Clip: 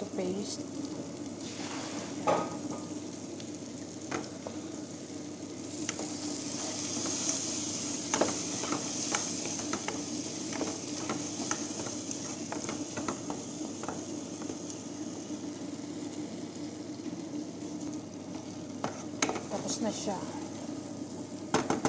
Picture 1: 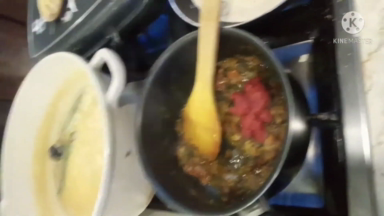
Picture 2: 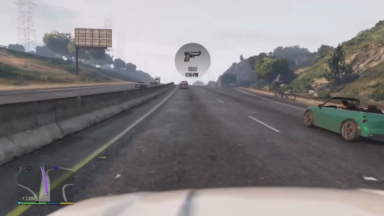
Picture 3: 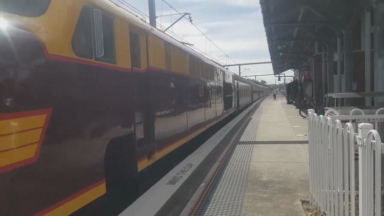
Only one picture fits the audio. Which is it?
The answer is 1